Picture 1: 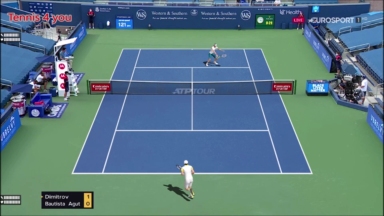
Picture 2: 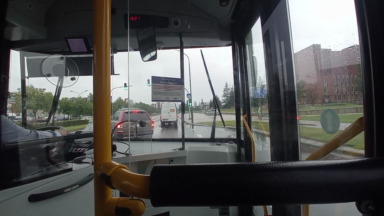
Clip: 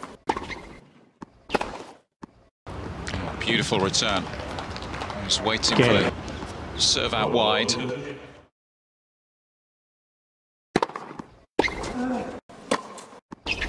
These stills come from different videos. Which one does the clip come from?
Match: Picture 1